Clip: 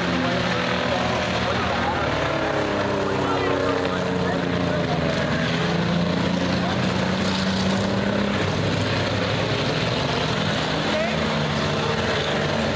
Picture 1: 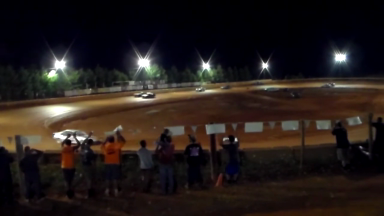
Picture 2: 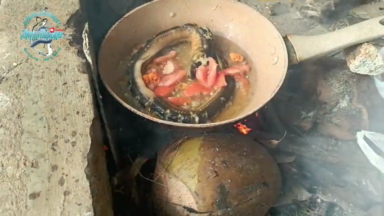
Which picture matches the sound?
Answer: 1